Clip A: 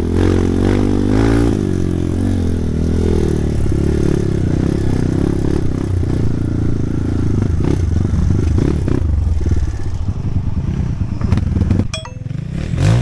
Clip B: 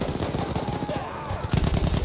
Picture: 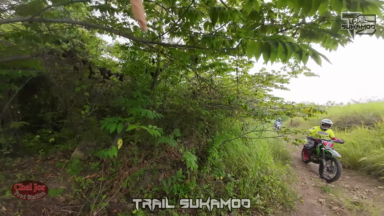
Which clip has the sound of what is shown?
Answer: A